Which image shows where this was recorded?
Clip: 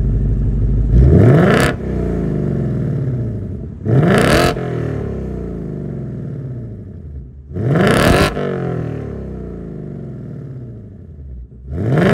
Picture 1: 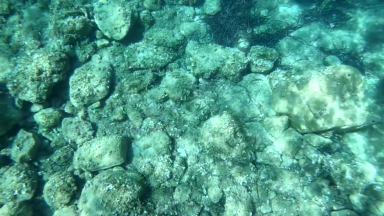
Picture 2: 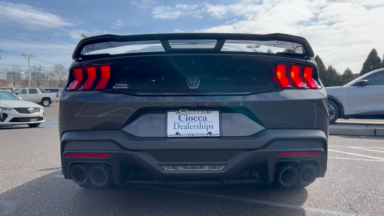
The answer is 2